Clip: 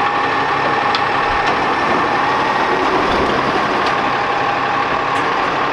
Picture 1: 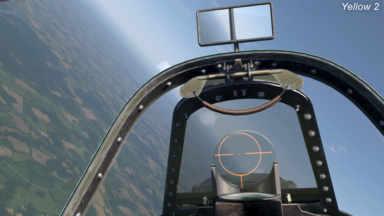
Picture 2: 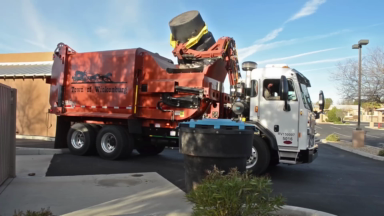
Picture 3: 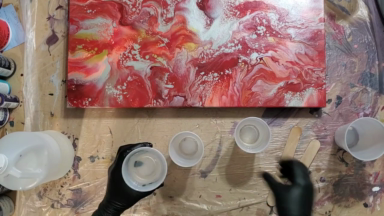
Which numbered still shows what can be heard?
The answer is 2